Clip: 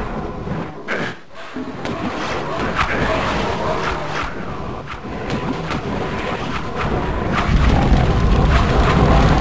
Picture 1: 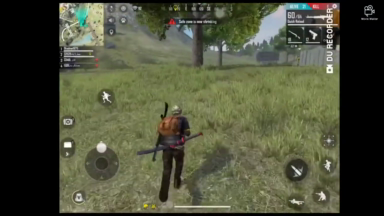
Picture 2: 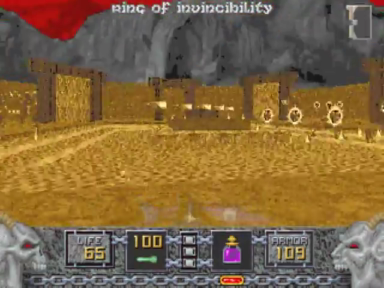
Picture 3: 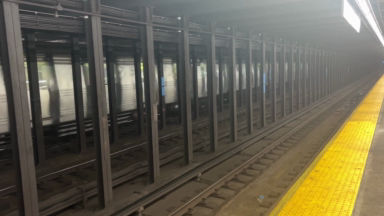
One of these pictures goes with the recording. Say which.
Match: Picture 2